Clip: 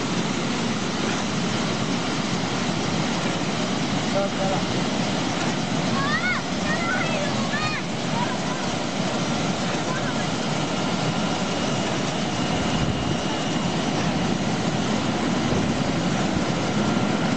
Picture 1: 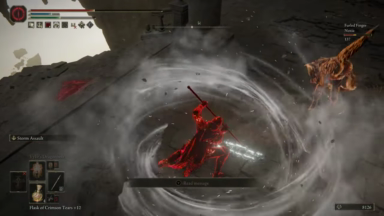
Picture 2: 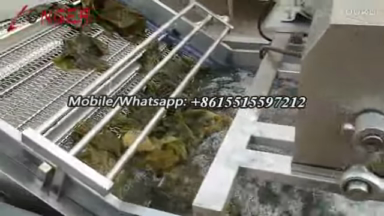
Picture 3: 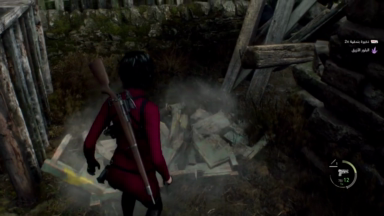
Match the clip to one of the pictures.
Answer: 2